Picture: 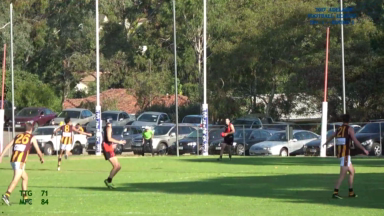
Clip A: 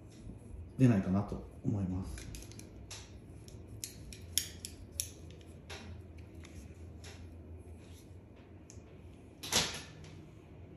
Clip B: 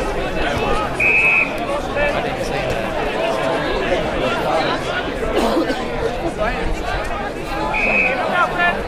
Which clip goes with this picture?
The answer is B